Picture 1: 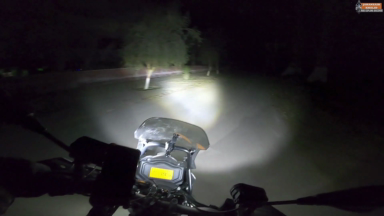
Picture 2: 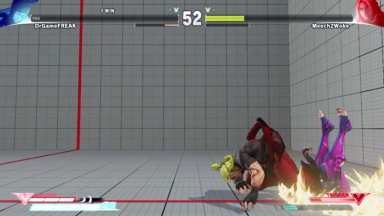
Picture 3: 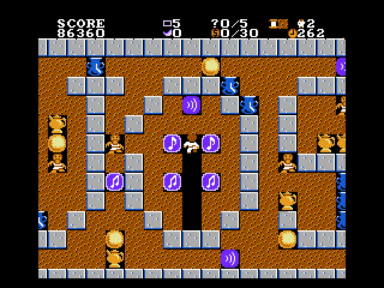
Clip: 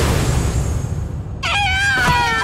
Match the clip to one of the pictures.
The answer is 2